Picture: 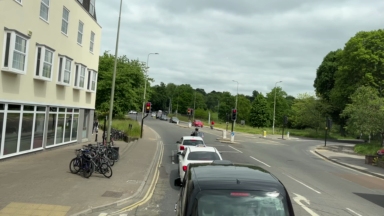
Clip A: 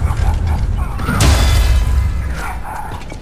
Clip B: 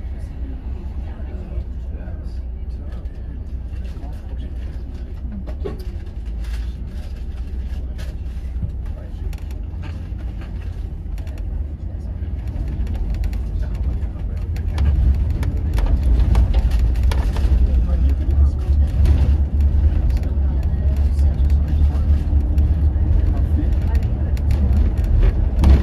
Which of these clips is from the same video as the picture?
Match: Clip B